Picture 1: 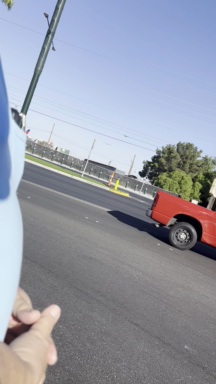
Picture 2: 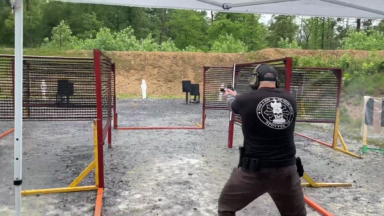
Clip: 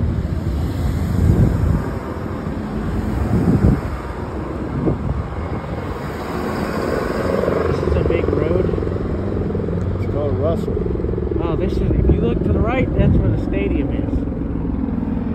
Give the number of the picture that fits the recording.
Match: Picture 1